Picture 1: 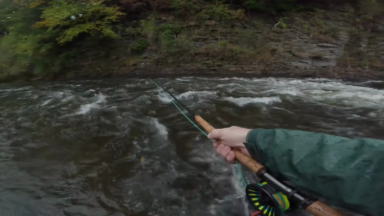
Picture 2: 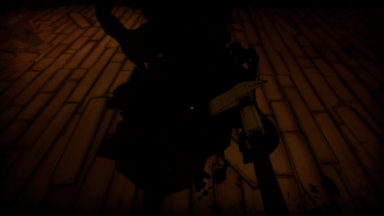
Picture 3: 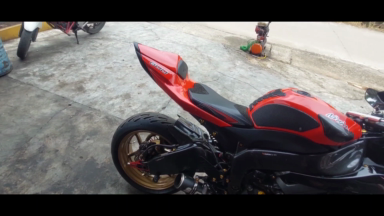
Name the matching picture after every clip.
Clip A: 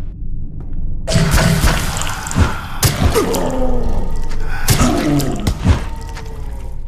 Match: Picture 2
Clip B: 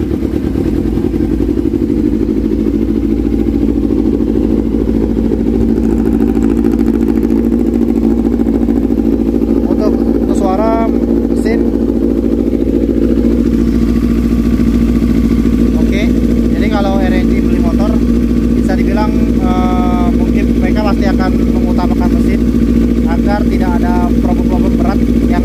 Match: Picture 3